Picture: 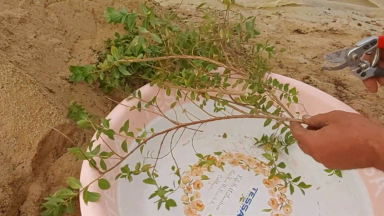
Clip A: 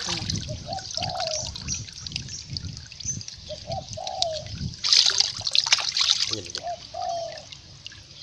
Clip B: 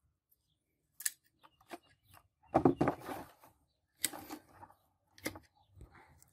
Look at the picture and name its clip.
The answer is B